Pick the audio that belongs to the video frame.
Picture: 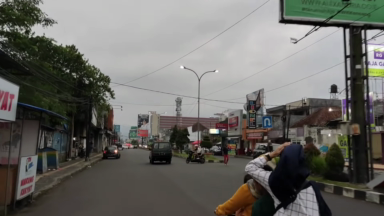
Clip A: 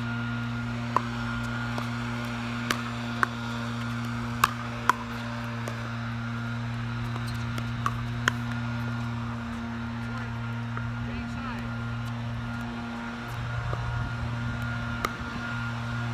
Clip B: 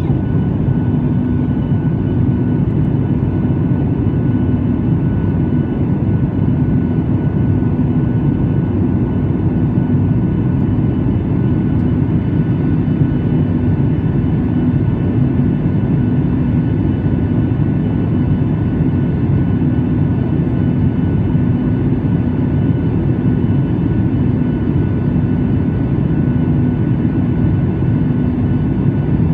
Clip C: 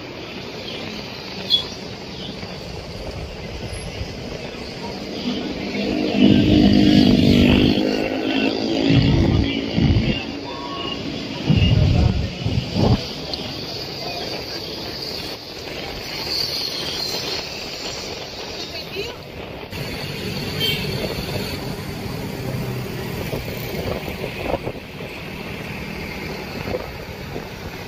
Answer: C